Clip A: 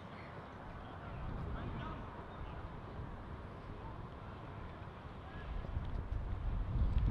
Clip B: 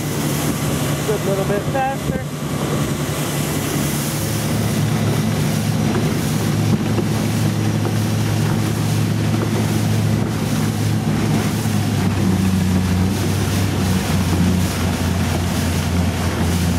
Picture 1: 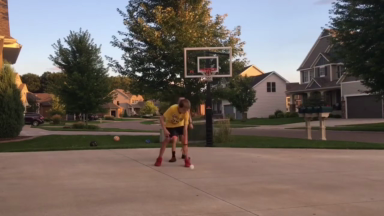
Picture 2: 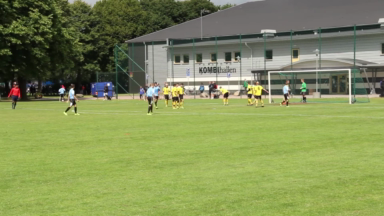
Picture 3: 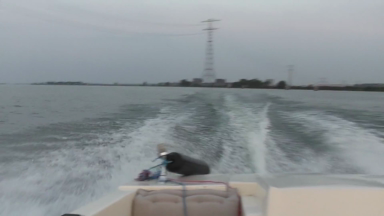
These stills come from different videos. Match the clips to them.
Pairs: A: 2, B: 3